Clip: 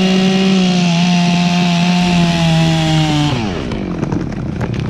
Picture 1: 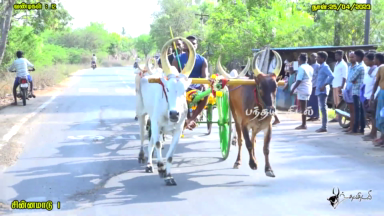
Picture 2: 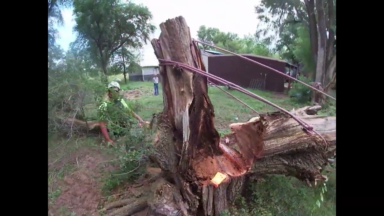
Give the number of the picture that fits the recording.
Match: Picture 2